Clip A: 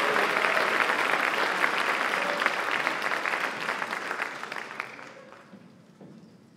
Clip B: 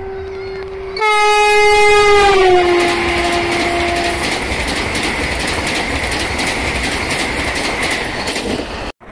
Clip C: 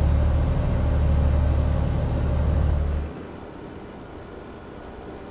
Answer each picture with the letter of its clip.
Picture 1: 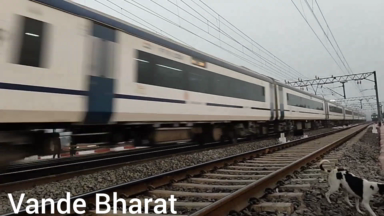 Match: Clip B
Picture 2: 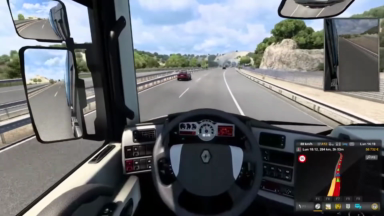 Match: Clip C